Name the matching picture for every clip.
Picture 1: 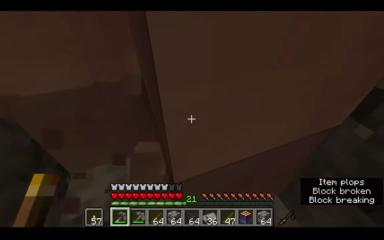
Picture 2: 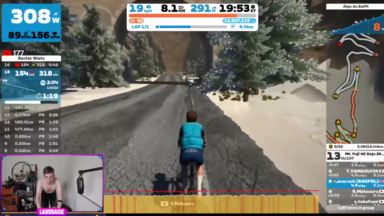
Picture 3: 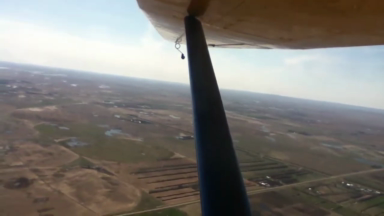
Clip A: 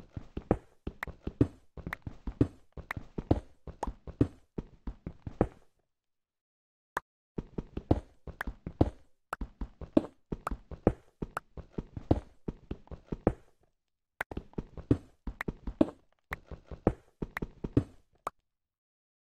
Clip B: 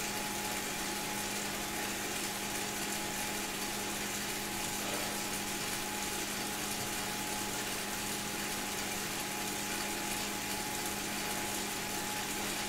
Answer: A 1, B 2